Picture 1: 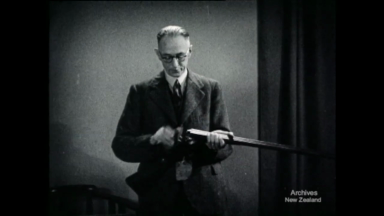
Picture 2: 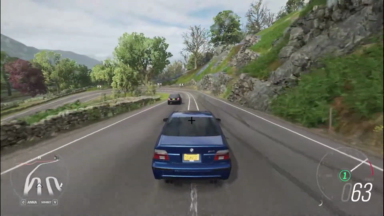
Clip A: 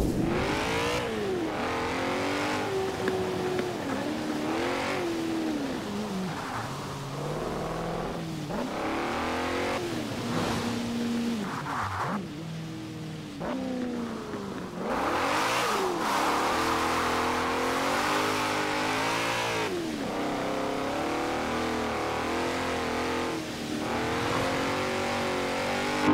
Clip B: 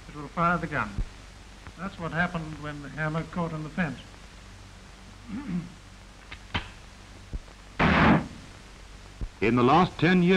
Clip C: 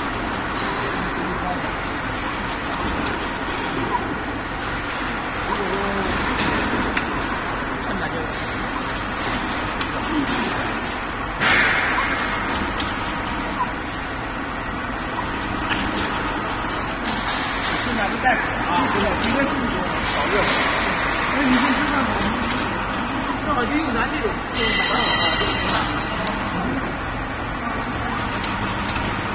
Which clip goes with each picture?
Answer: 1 B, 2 A